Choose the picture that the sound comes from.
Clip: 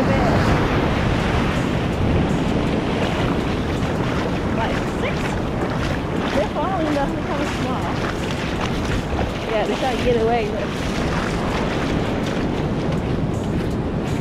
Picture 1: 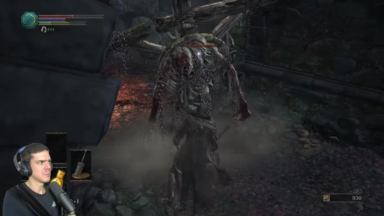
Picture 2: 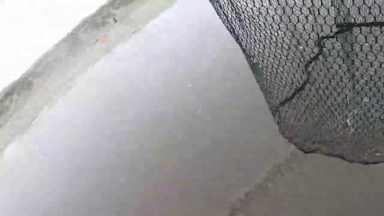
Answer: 2